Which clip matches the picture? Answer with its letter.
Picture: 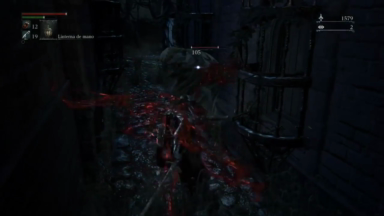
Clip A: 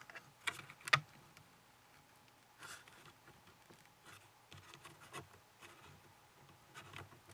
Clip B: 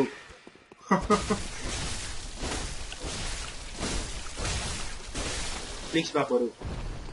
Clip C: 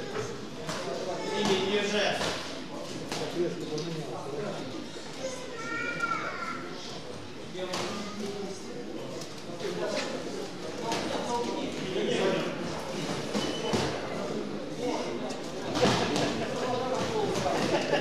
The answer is B